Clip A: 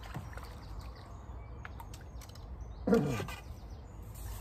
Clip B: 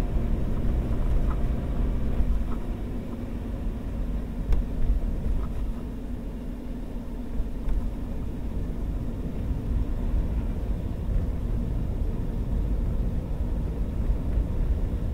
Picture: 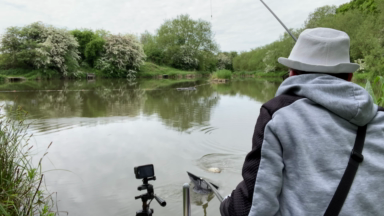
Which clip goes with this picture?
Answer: A